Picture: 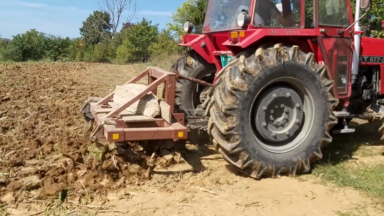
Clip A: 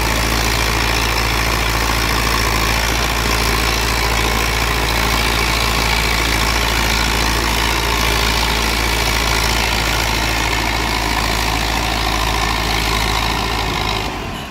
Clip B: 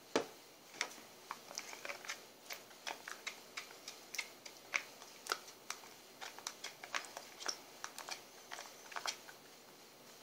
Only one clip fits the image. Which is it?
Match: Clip A